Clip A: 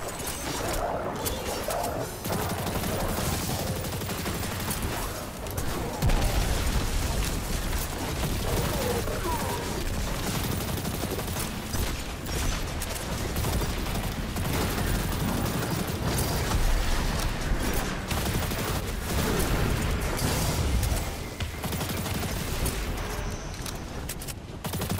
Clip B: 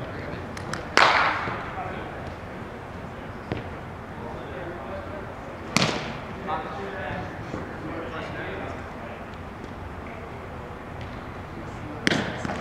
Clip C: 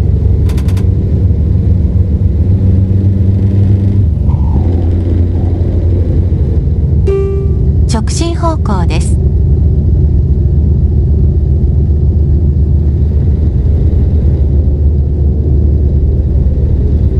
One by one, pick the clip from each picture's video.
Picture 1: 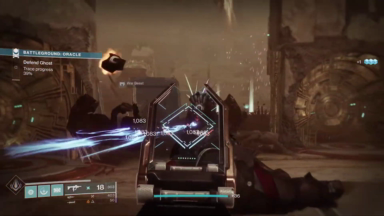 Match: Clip A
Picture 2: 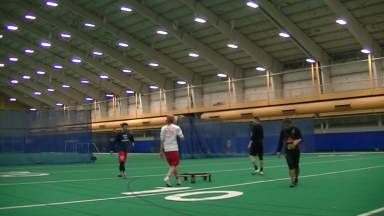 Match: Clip B